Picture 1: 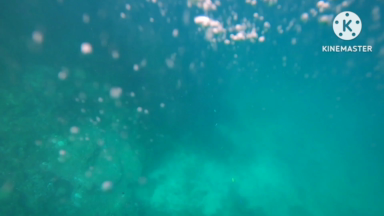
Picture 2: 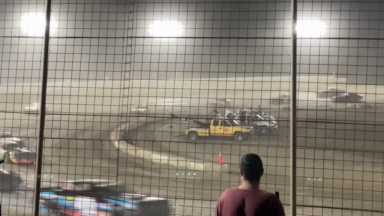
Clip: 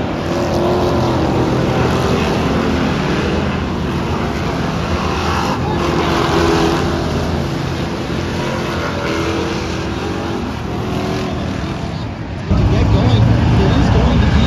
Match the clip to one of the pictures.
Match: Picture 2